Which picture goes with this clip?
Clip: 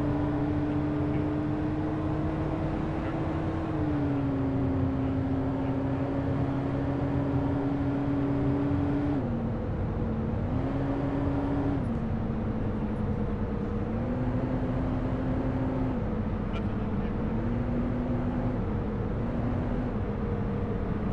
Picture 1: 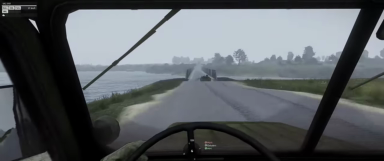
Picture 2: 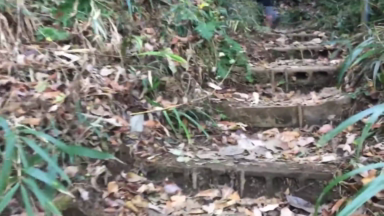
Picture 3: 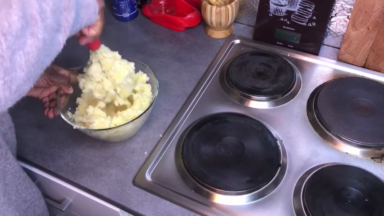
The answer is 1